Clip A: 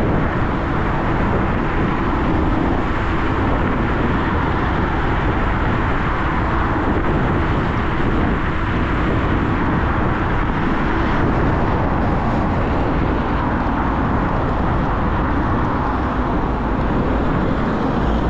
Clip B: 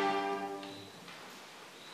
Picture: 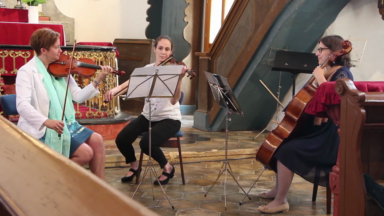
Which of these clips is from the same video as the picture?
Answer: B